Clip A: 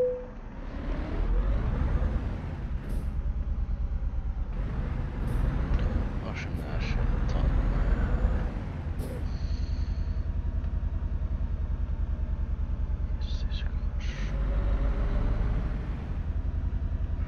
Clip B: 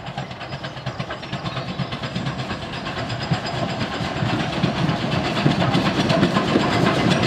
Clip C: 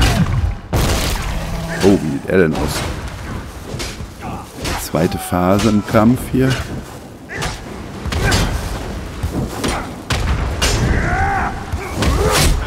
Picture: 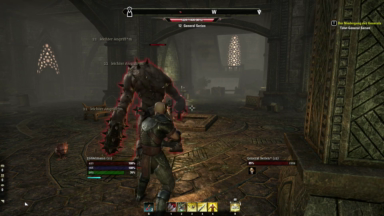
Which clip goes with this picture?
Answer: C